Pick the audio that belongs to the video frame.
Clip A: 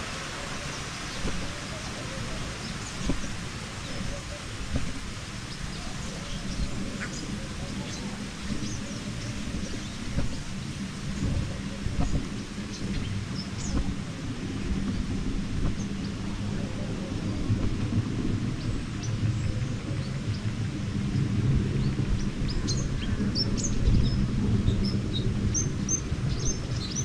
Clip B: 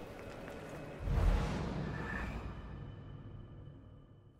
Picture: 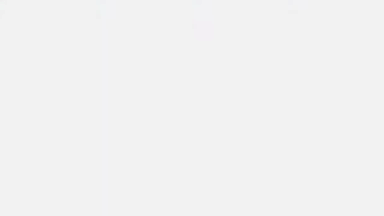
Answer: B